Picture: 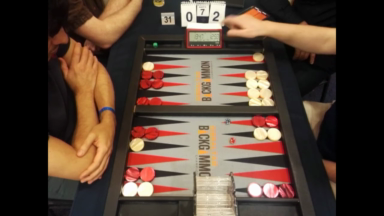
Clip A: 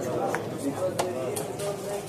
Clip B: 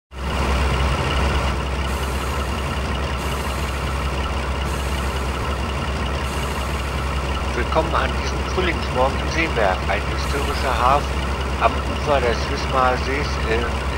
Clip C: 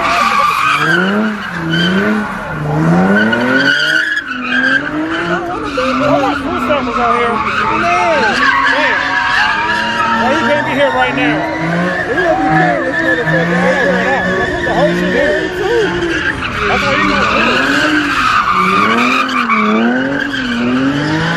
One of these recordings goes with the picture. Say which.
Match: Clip A